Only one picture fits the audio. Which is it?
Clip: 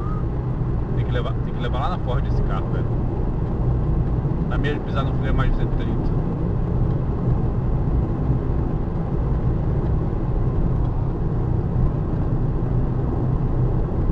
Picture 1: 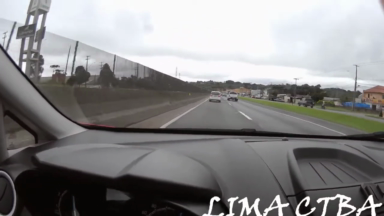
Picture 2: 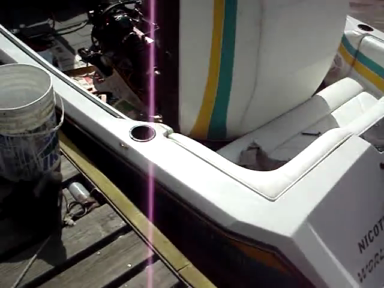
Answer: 1